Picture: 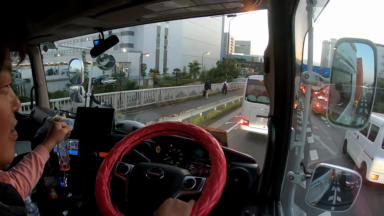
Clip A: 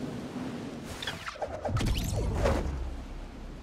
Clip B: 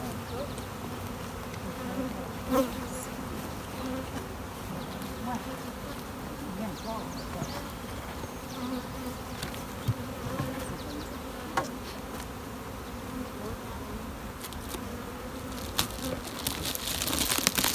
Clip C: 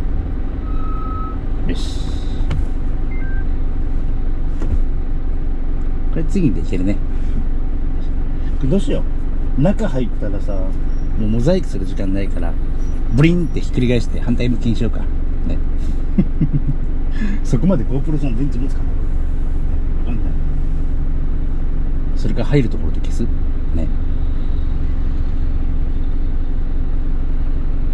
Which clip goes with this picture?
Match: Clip C